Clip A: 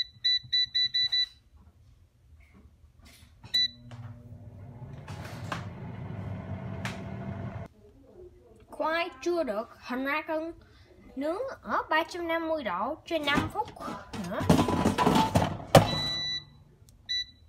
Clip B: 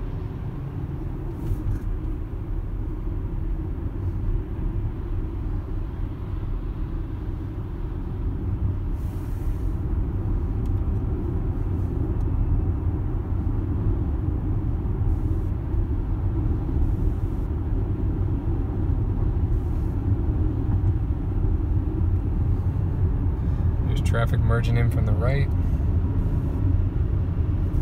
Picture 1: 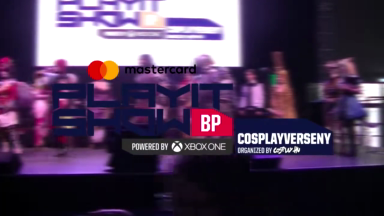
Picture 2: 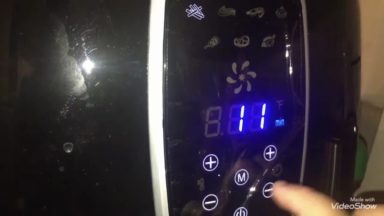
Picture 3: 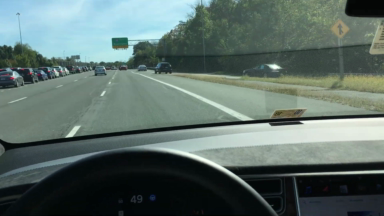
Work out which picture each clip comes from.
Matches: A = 2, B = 3